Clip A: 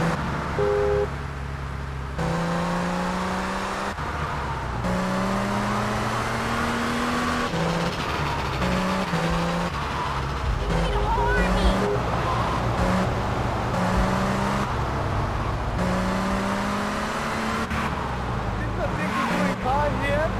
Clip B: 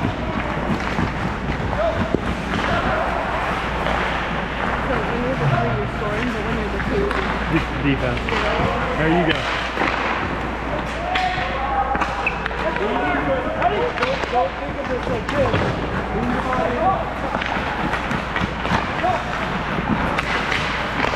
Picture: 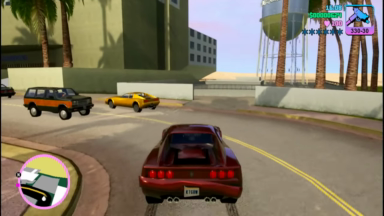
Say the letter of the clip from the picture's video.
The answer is A